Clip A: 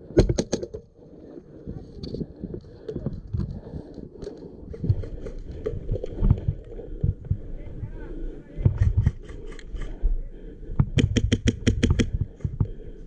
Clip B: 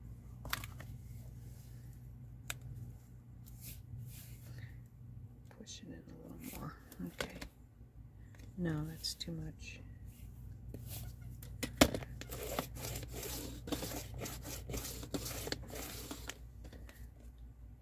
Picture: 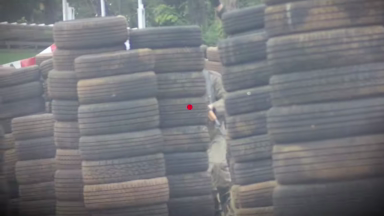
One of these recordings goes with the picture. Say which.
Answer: A